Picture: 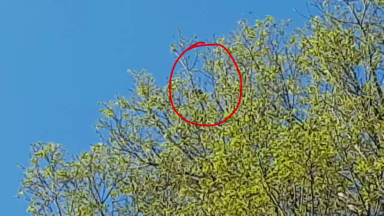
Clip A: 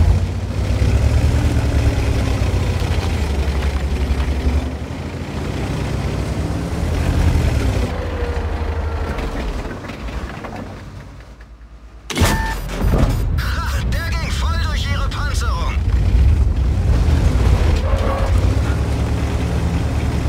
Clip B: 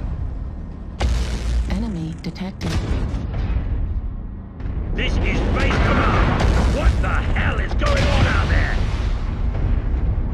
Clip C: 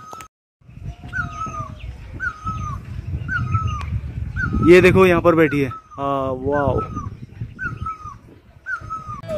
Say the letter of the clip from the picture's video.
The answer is C